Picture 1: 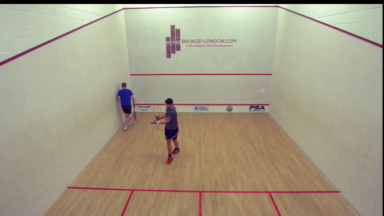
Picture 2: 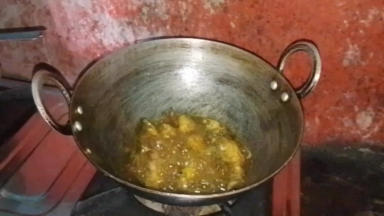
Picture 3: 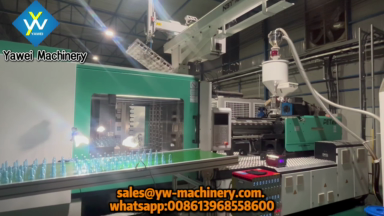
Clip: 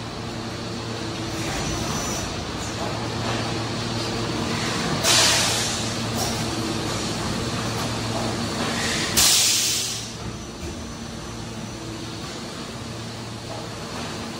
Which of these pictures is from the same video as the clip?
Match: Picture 3